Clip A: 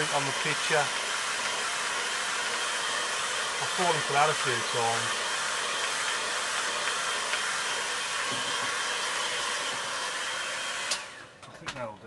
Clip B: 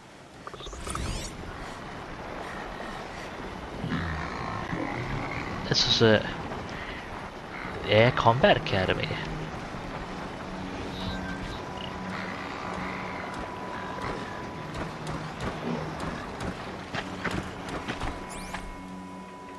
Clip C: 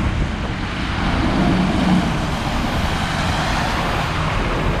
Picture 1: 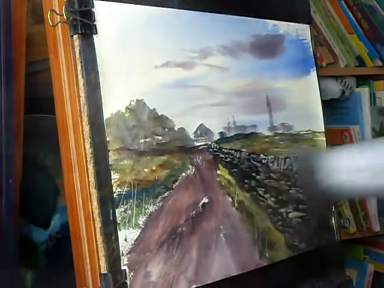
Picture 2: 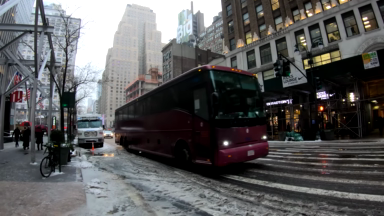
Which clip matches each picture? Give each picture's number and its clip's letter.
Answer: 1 A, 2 C